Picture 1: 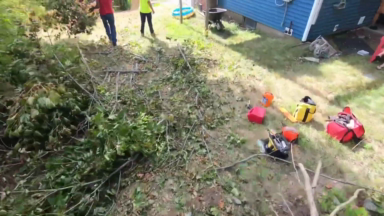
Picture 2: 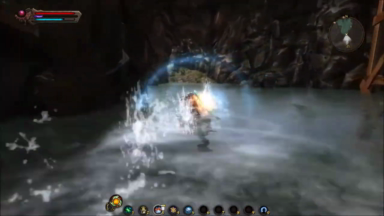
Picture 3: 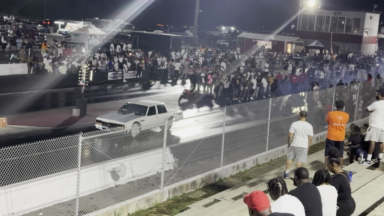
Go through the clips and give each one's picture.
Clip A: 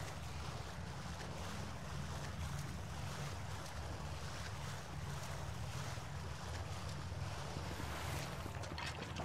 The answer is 2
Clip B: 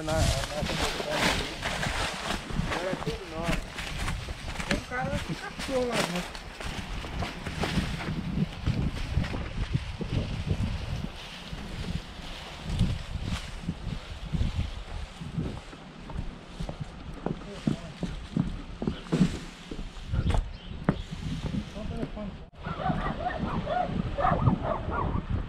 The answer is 1